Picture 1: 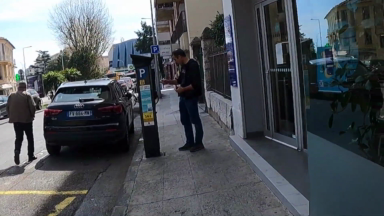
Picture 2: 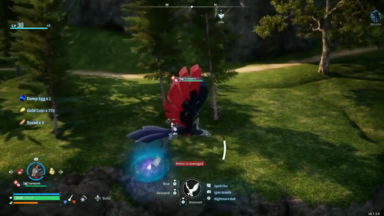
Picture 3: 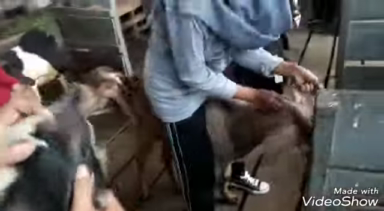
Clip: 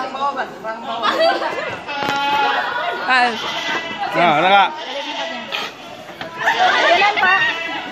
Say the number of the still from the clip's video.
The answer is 3